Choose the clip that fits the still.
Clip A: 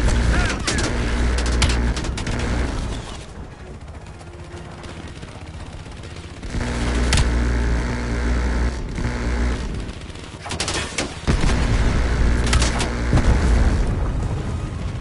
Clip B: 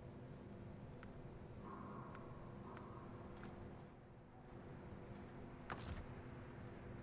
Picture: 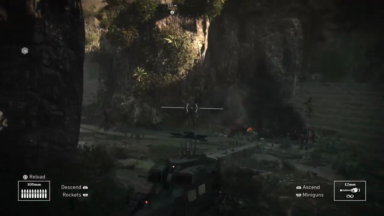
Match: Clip A